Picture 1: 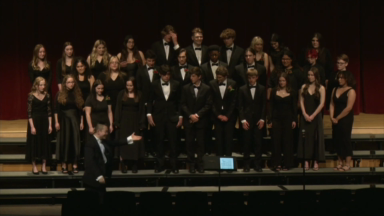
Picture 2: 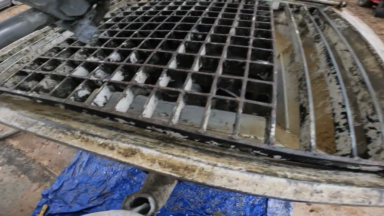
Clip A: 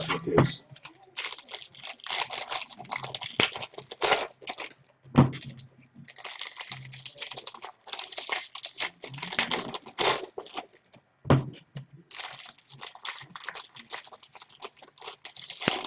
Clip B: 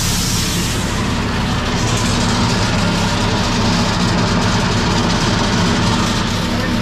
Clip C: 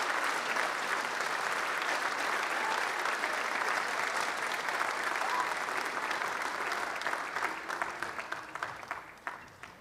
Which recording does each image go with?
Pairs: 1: C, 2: B